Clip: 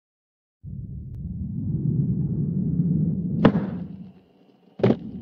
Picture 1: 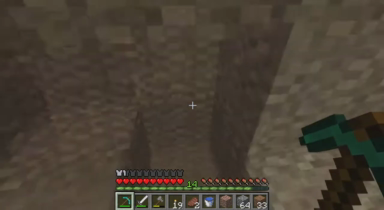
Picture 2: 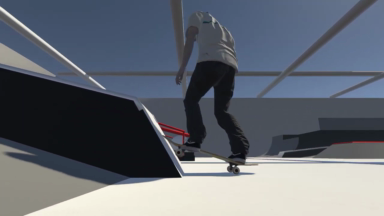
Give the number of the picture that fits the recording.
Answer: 2